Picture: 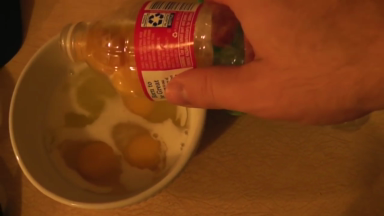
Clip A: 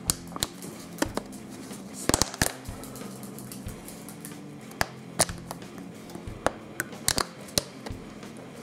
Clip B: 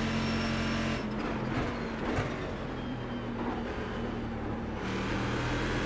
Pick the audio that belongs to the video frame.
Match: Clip A